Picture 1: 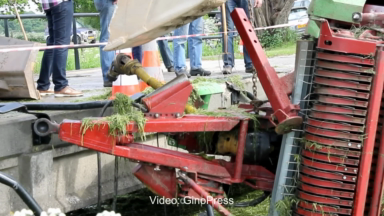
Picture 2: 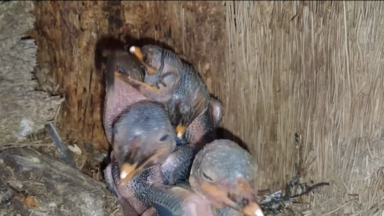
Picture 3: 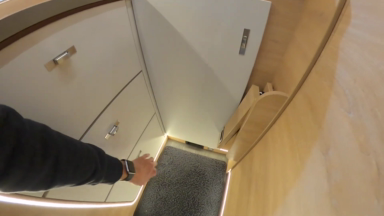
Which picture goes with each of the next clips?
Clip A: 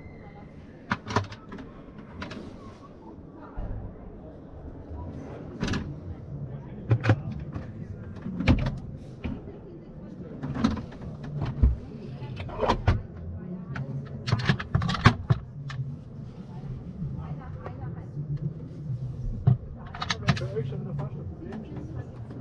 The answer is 3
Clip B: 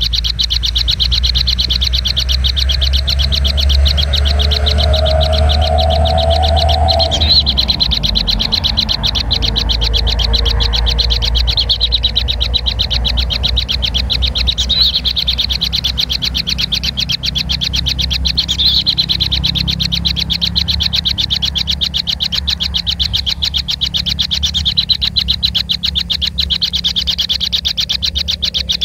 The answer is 2